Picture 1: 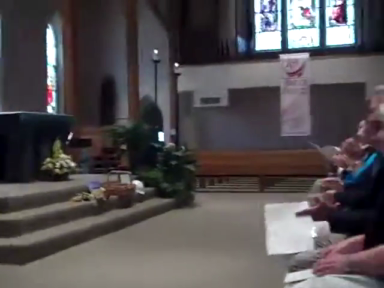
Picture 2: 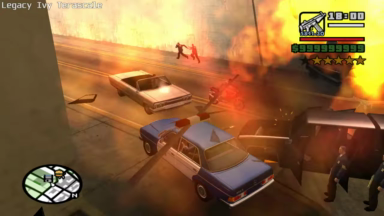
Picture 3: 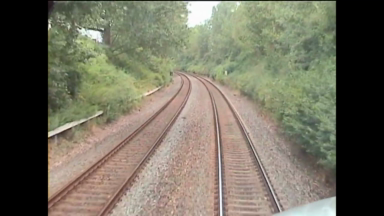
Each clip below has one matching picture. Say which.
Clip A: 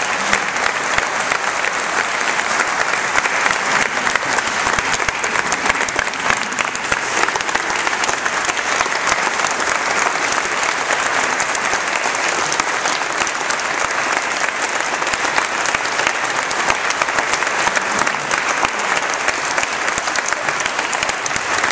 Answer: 1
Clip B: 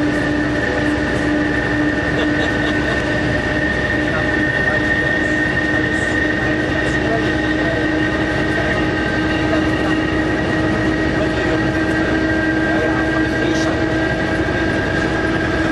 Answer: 3